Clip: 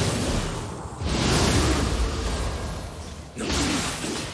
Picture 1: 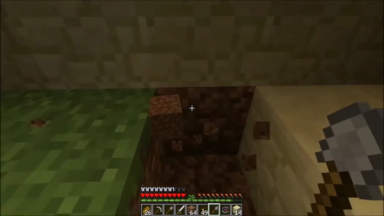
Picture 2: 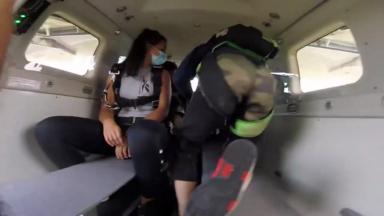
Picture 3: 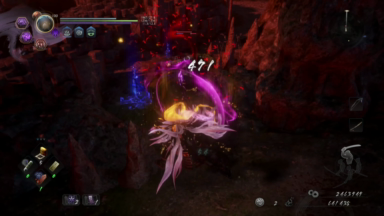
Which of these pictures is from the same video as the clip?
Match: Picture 3